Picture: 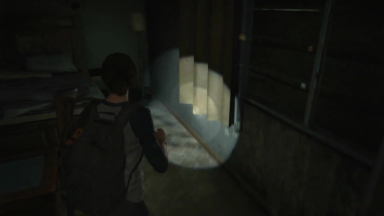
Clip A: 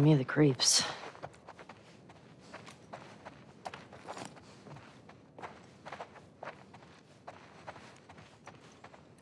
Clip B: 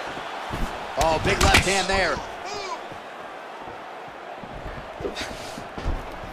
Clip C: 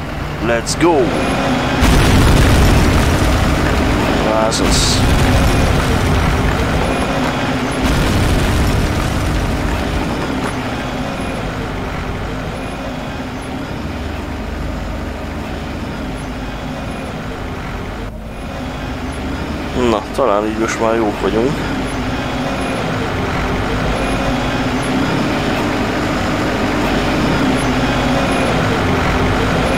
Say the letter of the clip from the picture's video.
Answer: A